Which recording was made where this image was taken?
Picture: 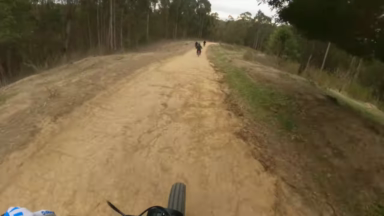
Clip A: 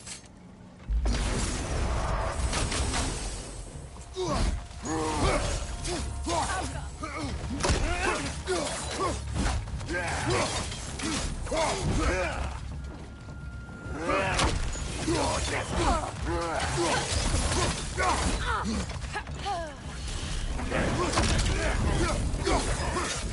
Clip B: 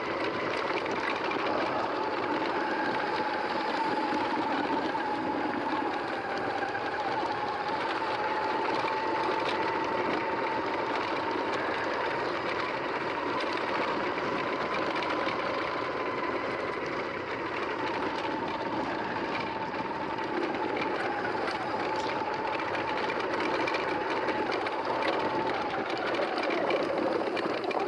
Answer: B